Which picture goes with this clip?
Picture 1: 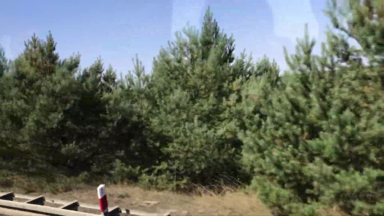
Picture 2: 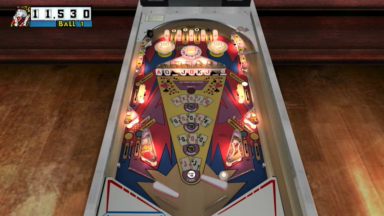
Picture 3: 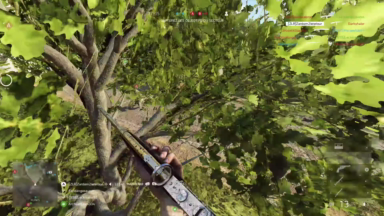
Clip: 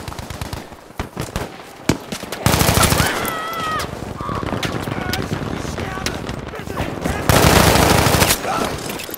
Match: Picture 3